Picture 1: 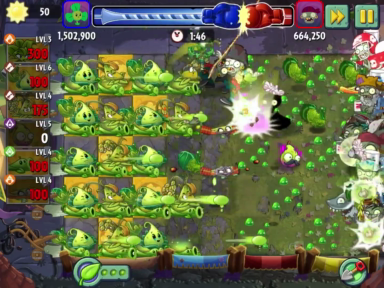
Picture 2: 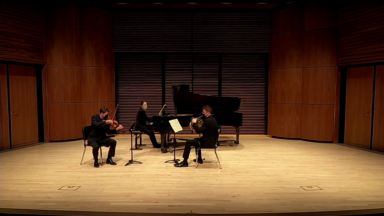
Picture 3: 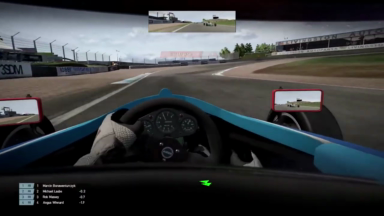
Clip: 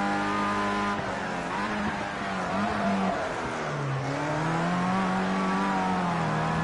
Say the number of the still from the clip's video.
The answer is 3